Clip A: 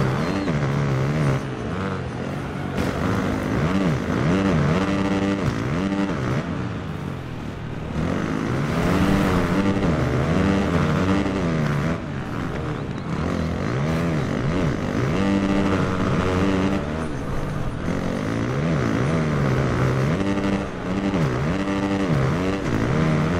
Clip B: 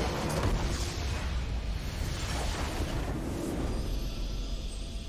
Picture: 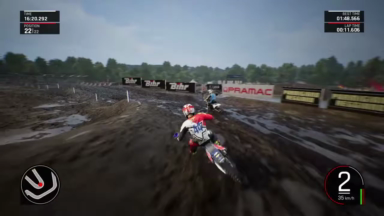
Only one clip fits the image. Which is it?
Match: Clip A